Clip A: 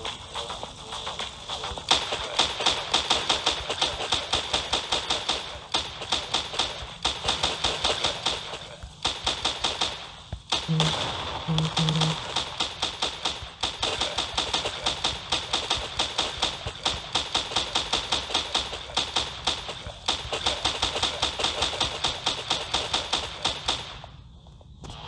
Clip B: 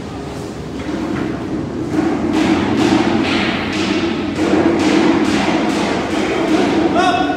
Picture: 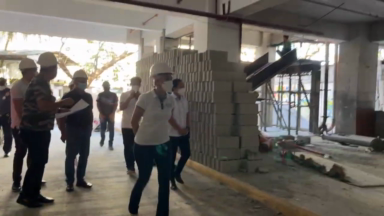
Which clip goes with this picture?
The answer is B